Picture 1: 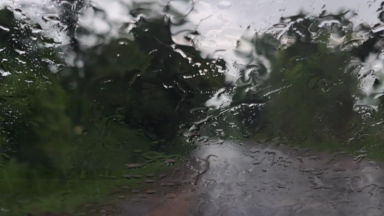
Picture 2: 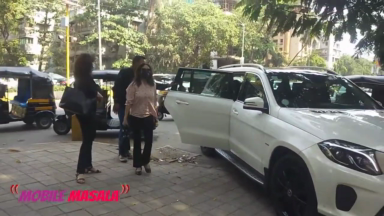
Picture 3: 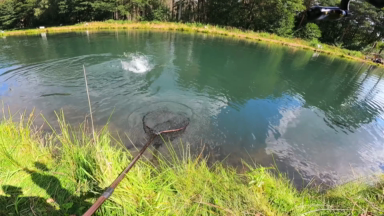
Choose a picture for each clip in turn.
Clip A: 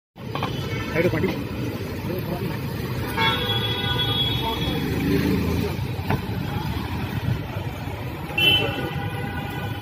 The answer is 2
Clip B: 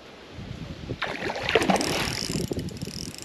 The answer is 3